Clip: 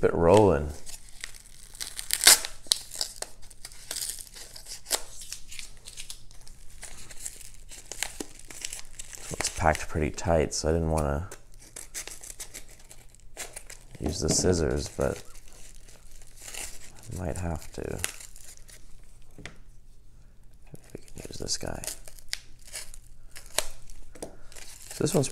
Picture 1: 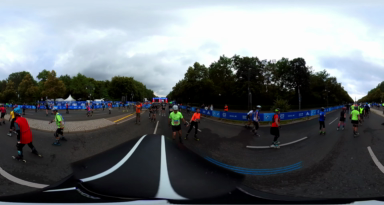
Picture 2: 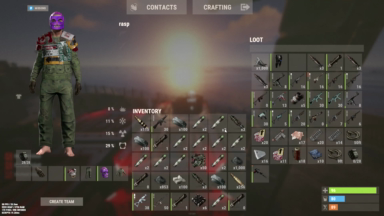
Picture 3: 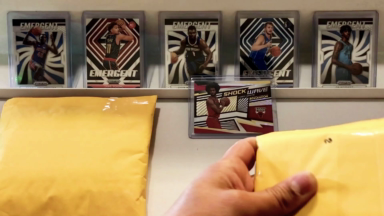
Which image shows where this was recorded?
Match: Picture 3